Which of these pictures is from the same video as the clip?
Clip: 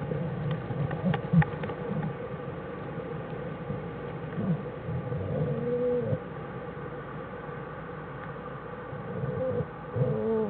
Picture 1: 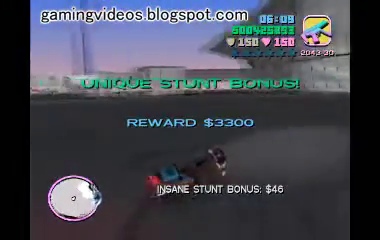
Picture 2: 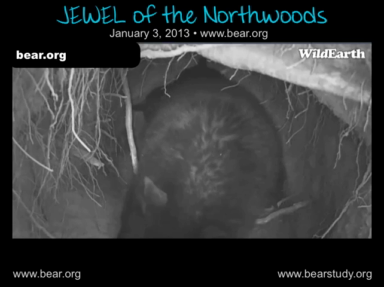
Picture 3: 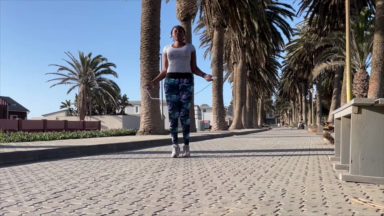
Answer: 2